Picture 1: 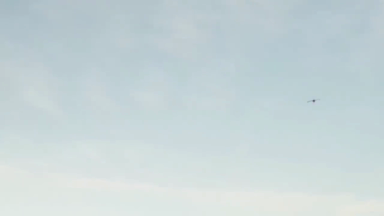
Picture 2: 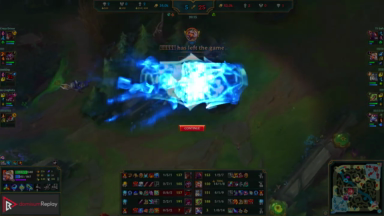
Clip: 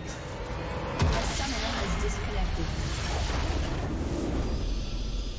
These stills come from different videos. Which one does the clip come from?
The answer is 2